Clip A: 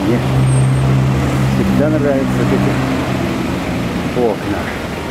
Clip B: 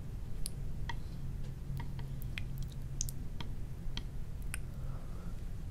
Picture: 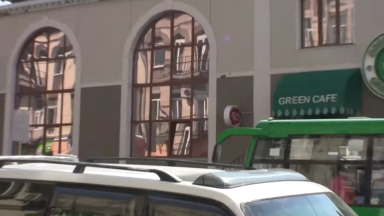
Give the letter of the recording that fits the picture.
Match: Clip A